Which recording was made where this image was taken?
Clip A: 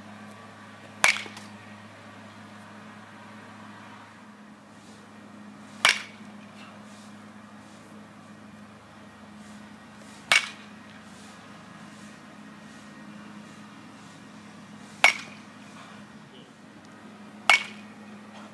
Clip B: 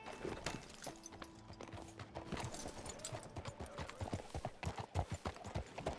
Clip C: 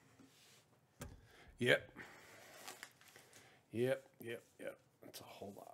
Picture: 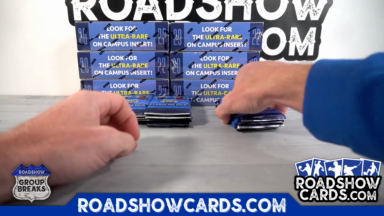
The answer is C